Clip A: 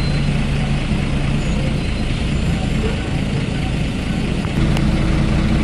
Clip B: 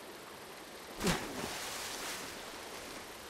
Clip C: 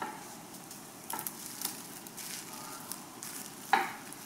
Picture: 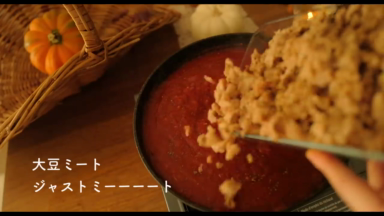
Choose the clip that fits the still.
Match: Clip C